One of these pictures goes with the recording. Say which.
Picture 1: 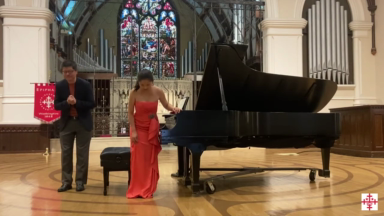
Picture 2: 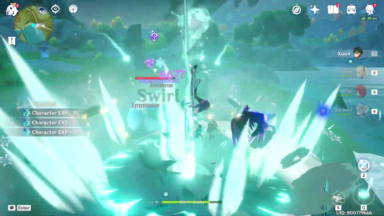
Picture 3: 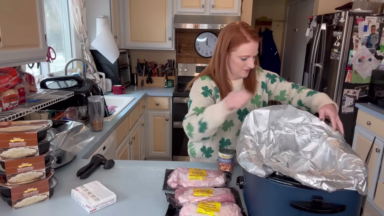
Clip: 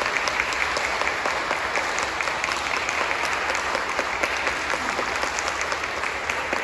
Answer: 1